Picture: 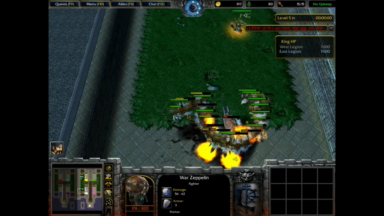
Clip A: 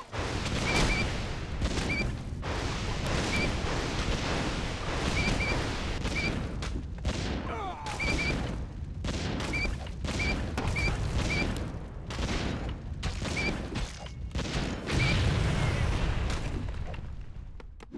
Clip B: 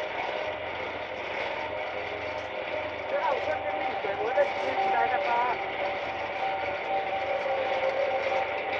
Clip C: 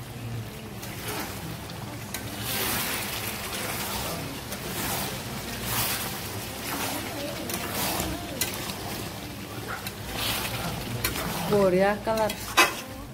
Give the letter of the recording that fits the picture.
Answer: A